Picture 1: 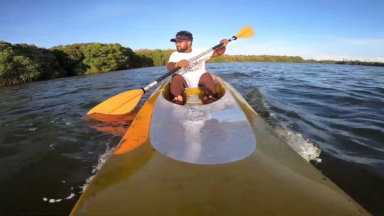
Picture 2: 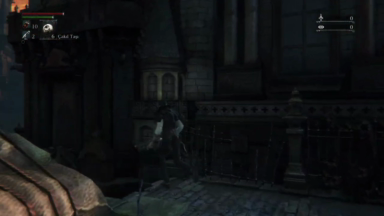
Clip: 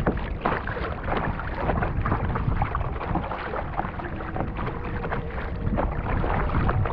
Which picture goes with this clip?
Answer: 1